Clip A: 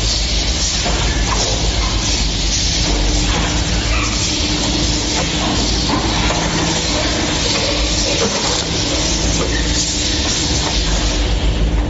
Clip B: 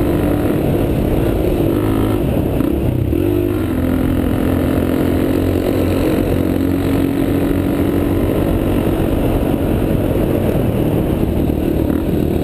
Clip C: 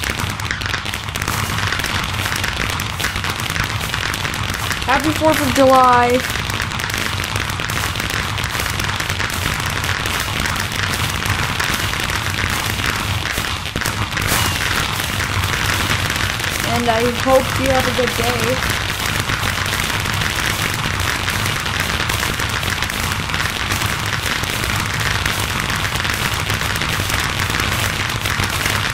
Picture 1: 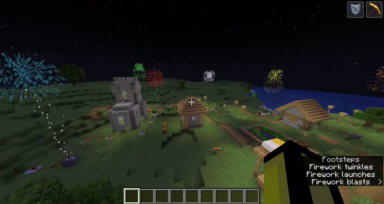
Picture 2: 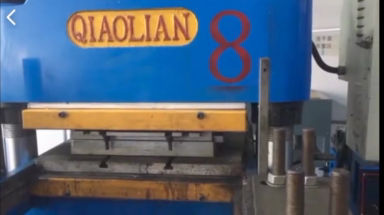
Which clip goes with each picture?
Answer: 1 C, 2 A